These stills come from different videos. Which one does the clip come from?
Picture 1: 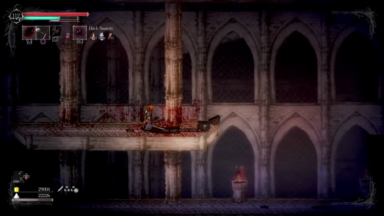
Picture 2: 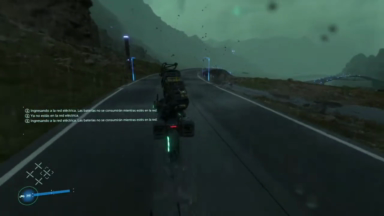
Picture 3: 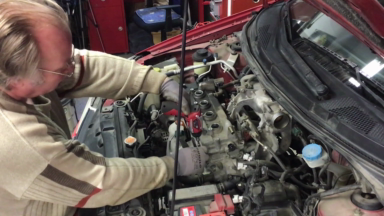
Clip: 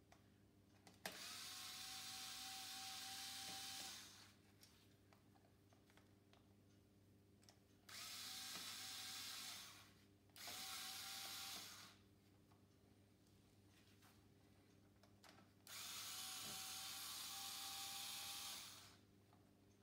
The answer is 3